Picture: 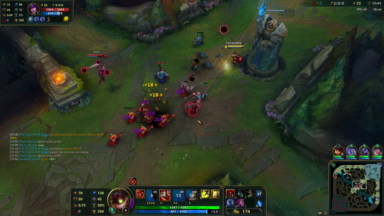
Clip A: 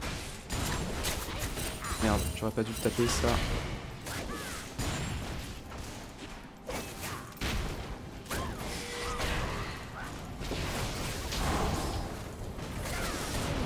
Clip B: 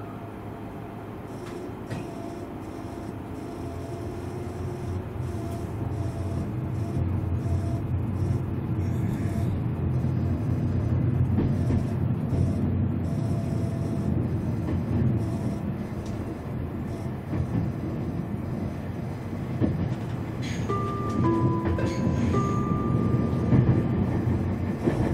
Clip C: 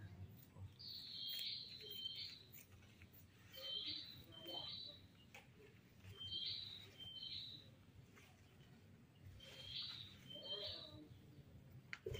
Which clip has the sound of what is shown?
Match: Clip A